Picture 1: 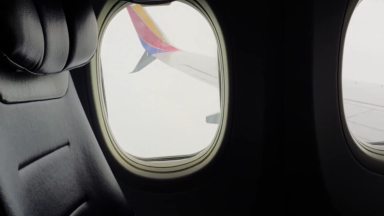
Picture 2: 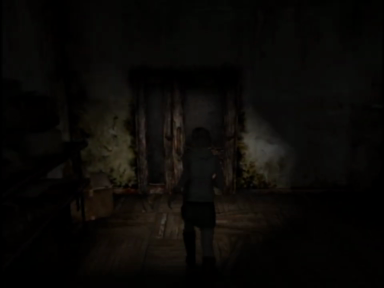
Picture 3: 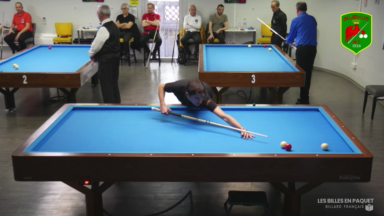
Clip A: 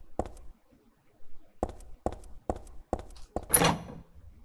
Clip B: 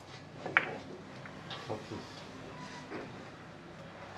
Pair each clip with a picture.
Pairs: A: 2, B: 3